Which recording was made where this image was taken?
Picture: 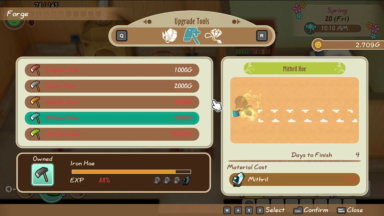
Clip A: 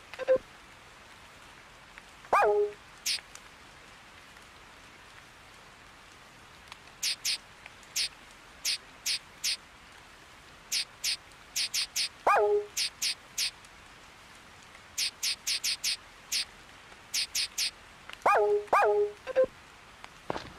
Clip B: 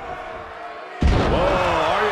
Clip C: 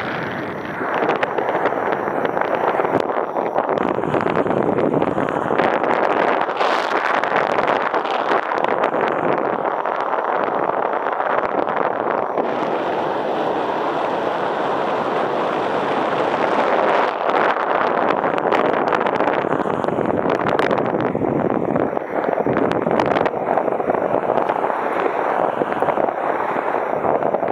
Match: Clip A